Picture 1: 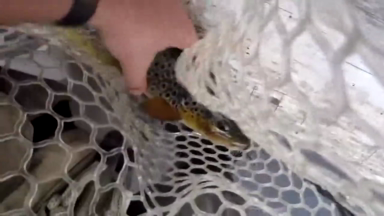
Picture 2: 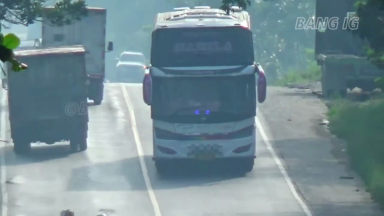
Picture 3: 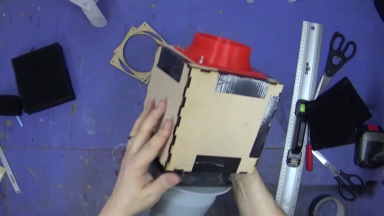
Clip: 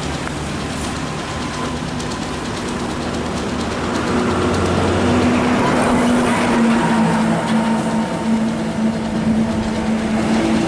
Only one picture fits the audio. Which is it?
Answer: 2